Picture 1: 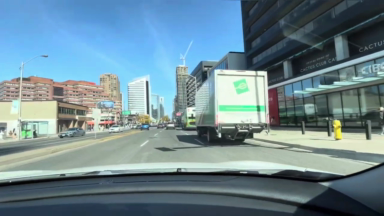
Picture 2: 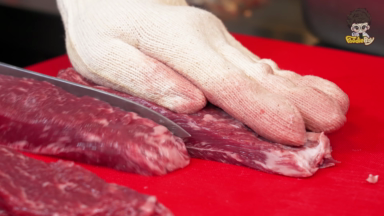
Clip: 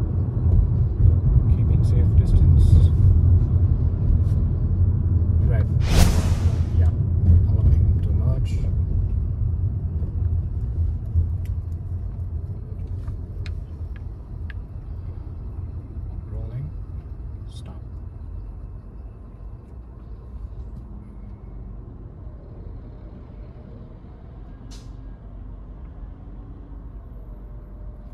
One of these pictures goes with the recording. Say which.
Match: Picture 1